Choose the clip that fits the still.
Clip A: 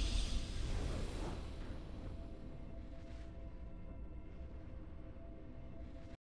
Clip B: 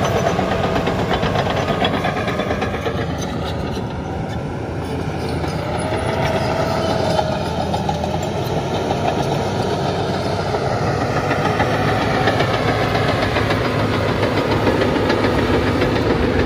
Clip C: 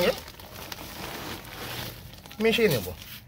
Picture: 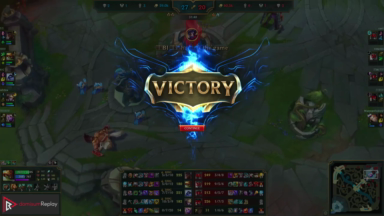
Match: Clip A